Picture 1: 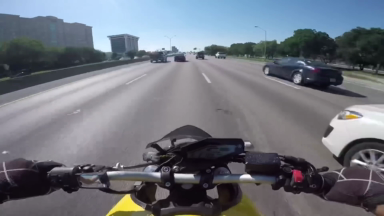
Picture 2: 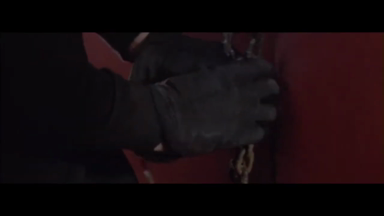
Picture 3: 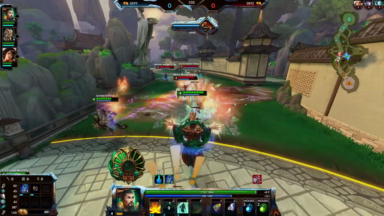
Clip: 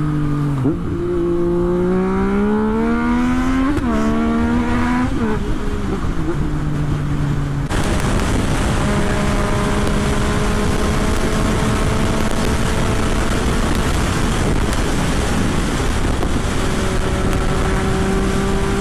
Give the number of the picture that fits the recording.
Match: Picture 1